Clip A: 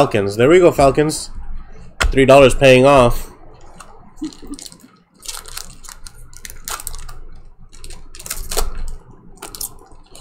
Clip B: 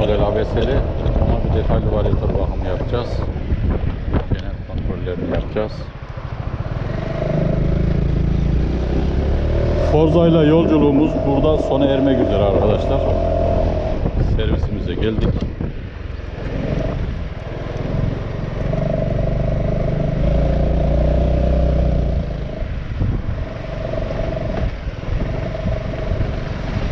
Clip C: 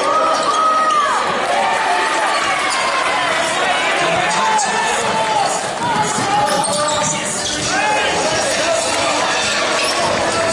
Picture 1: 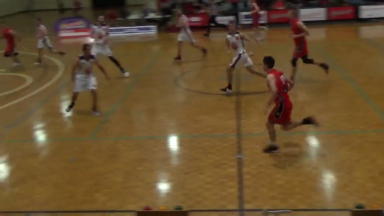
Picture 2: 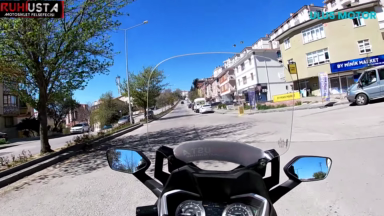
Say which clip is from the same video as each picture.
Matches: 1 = C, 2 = B